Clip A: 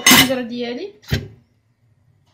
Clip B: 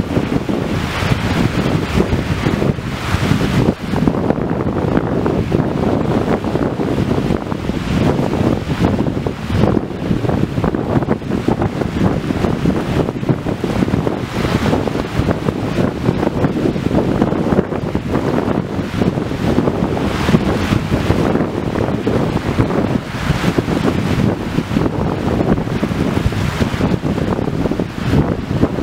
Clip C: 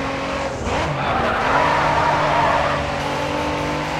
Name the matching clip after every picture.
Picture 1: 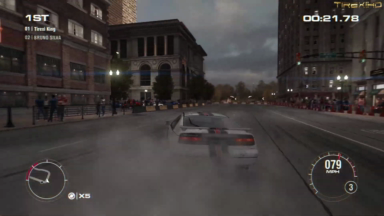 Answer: C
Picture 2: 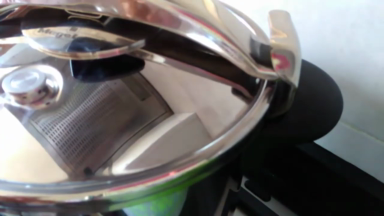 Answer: A